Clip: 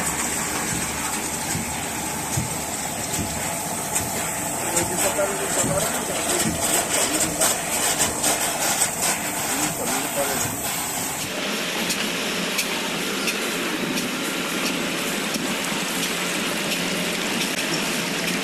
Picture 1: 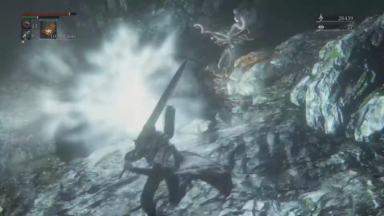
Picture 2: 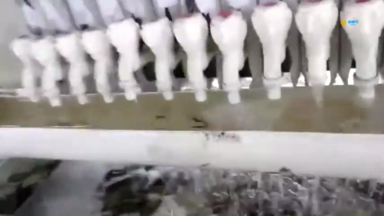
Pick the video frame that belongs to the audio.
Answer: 2